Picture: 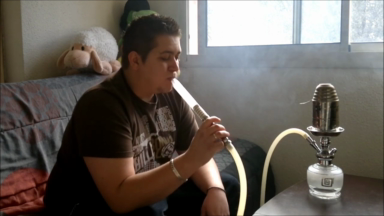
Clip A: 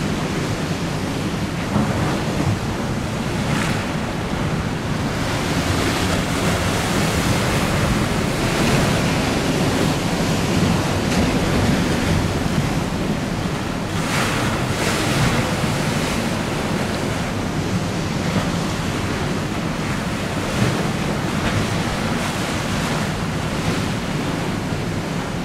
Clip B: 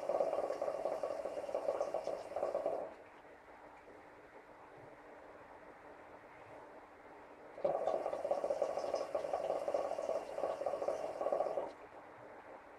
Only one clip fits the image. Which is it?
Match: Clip B